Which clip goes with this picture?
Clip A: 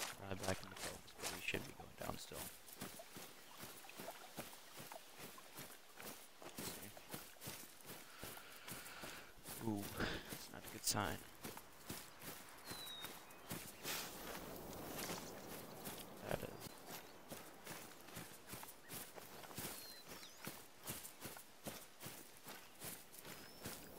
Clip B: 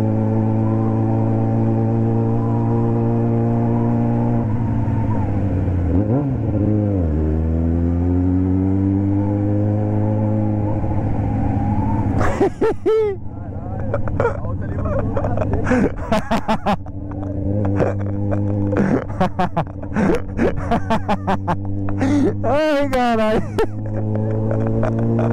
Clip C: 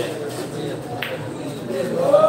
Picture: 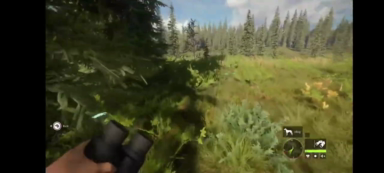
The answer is A